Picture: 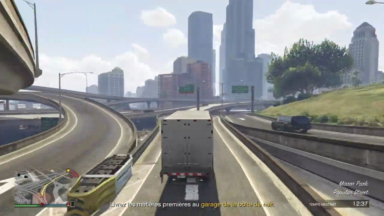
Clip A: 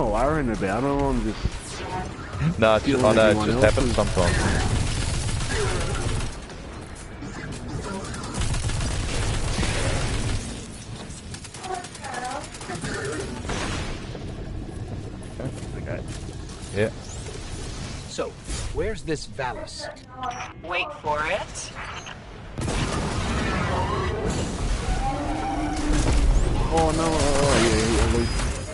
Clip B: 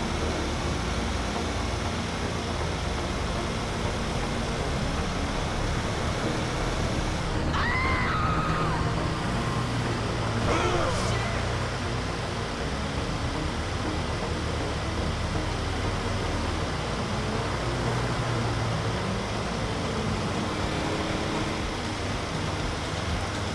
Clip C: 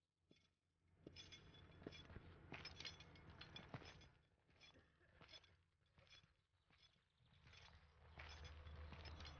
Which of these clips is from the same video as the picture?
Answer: B